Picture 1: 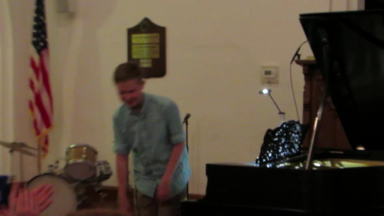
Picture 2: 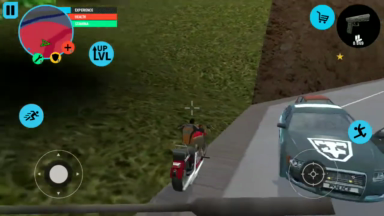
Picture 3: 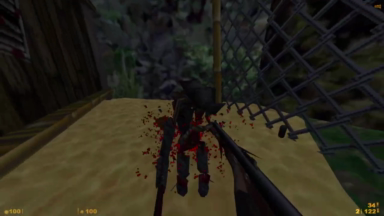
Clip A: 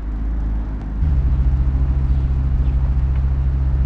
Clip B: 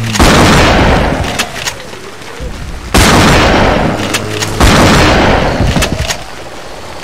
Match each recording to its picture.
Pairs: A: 2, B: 3